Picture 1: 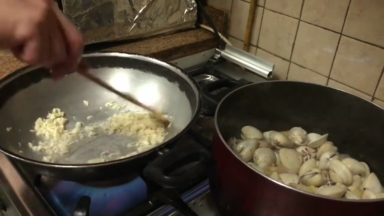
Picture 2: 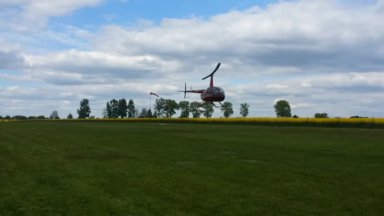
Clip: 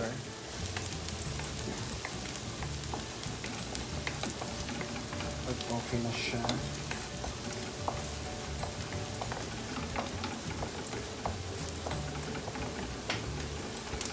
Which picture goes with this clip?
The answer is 1